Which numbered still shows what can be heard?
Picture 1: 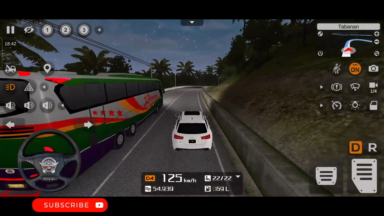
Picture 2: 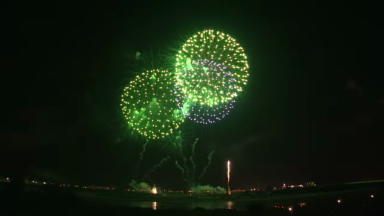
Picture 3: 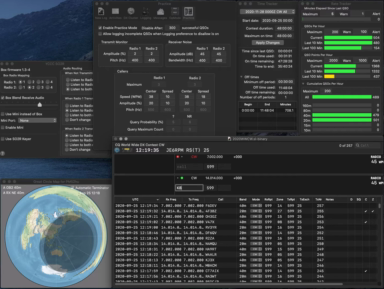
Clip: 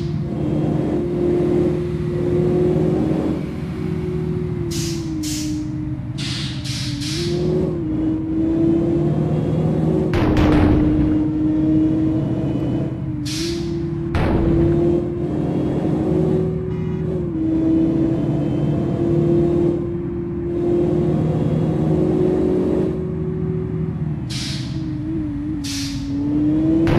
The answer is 1